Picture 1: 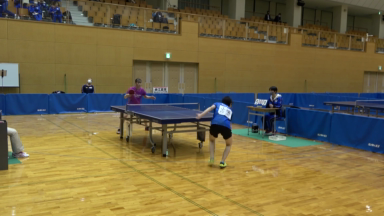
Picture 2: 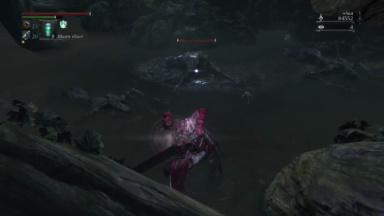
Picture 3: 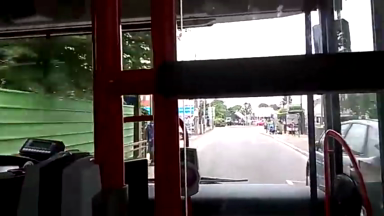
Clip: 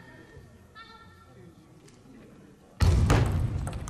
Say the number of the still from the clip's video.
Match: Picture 1